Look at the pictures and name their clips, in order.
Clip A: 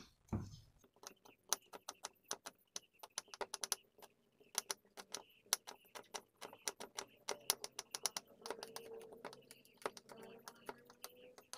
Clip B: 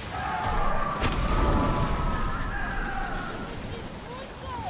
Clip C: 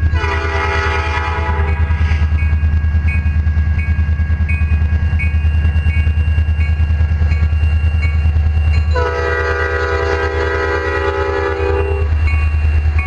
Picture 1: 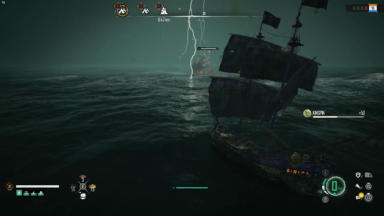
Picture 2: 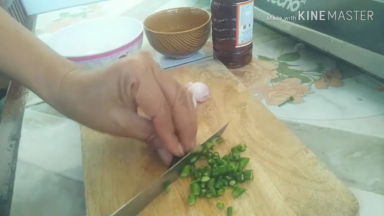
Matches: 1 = B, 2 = A